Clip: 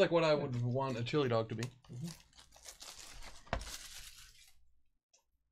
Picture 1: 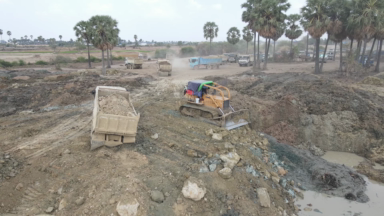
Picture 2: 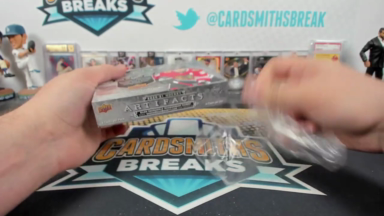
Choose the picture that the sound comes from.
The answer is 2